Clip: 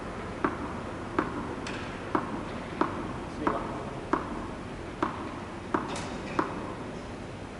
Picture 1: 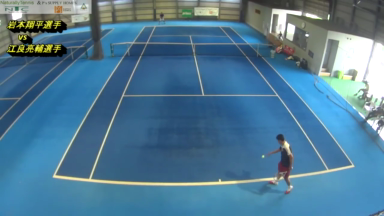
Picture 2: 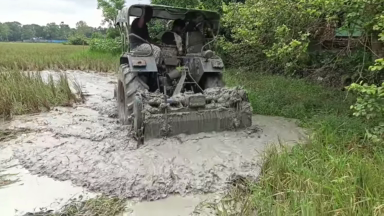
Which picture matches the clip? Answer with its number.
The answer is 1